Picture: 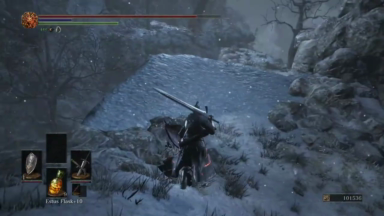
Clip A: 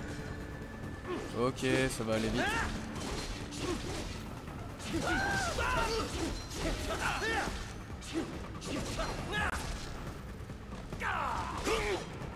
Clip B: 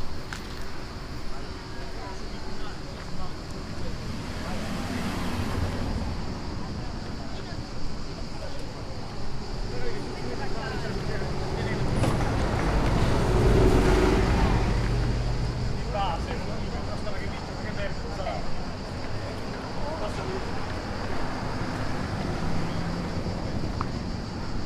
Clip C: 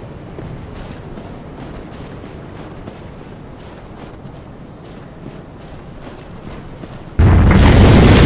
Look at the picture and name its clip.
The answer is C